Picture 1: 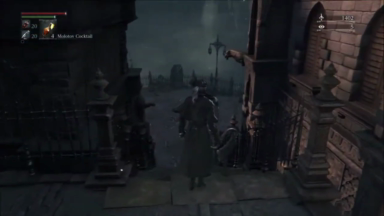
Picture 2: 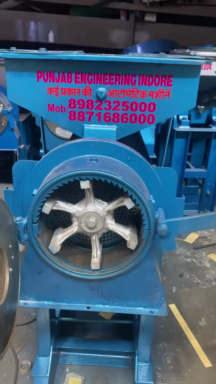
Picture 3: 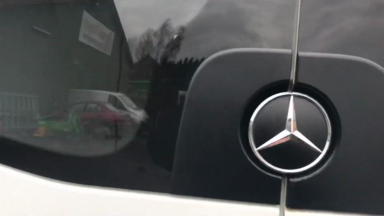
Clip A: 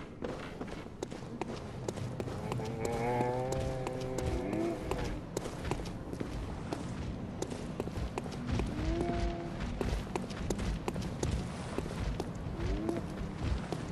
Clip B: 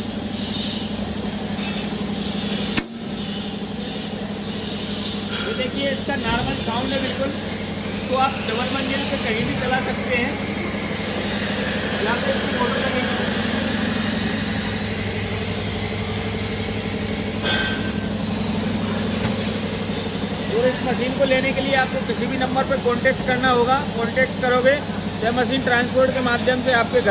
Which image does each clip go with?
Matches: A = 1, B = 2